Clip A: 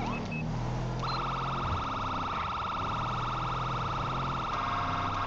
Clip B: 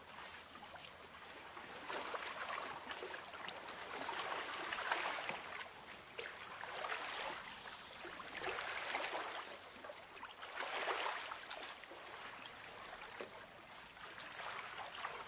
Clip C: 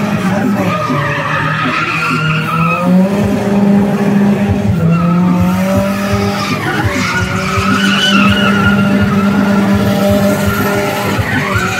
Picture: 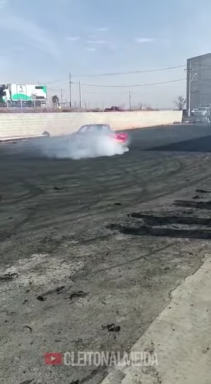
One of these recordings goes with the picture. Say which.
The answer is C